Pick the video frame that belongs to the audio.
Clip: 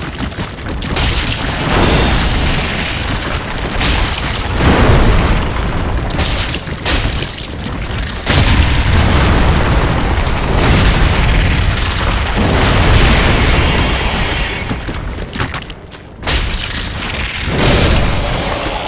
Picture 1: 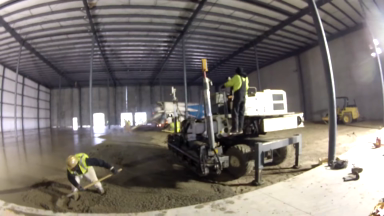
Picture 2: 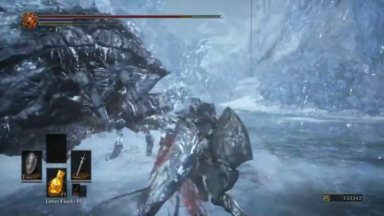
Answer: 2